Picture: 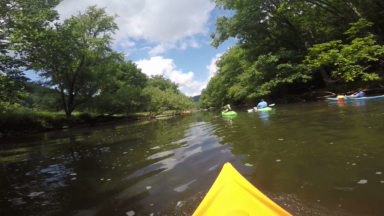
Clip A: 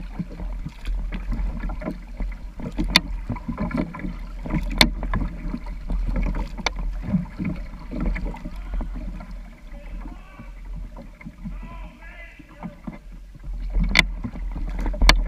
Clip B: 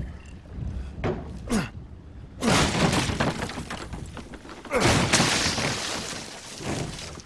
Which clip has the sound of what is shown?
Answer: A